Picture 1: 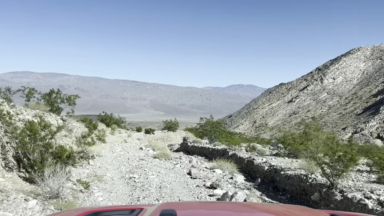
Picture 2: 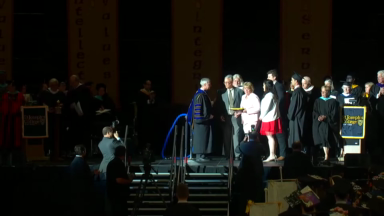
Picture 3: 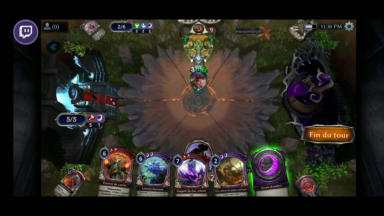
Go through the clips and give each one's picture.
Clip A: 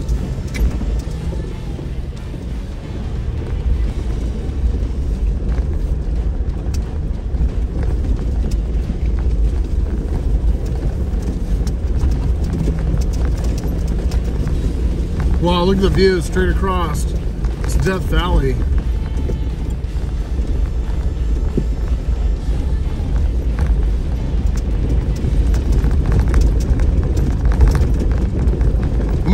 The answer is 1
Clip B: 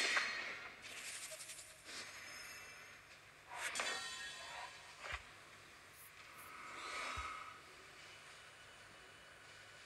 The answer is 3